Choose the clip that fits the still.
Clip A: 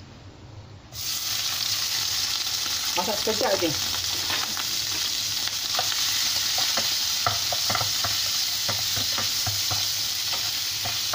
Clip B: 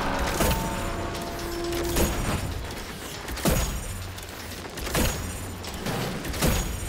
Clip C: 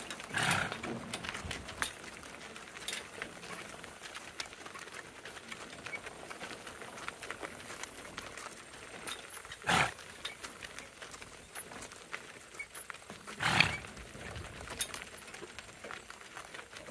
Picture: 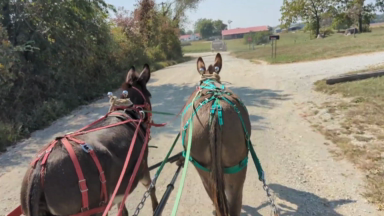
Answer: C